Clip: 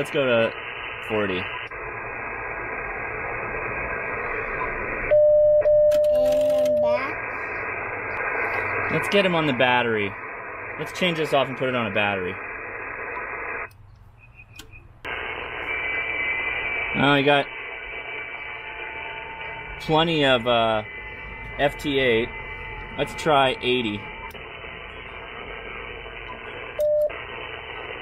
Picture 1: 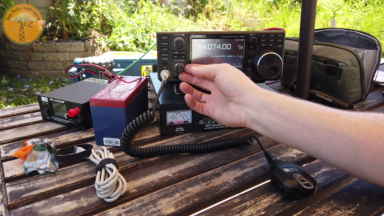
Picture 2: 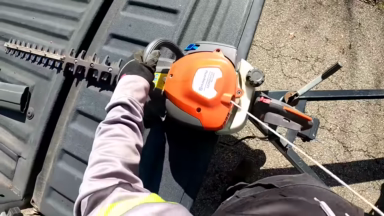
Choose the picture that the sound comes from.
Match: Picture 1